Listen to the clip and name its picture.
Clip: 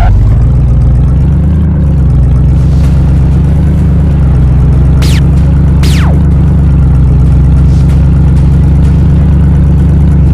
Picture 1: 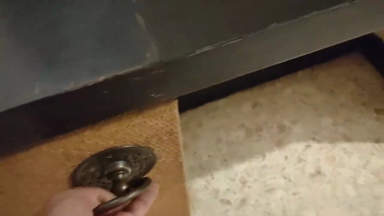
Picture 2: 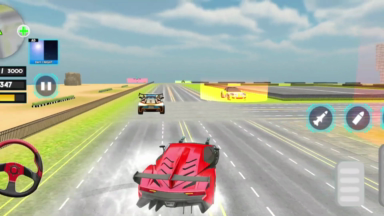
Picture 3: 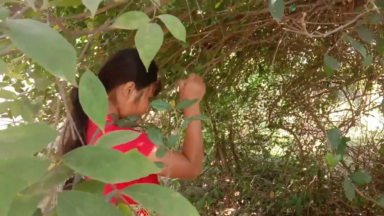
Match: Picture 2